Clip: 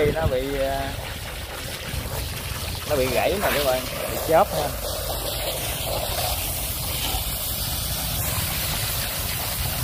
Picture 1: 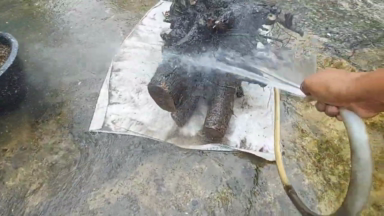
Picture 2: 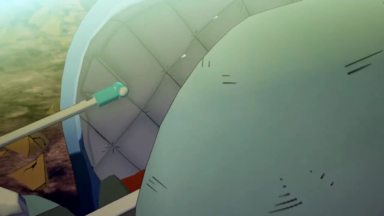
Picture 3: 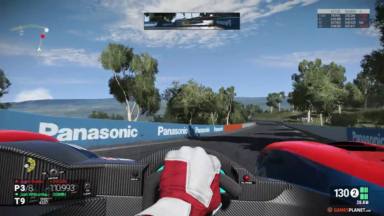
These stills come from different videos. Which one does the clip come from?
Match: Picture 1